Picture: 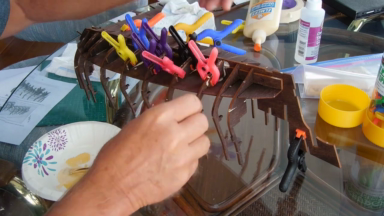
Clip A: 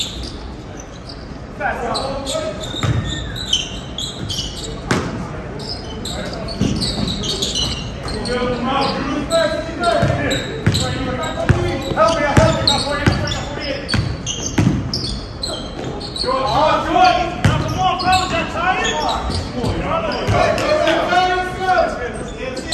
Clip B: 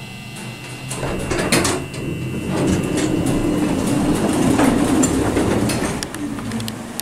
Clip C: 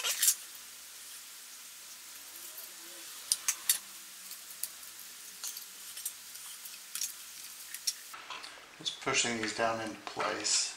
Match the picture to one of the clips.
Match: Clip C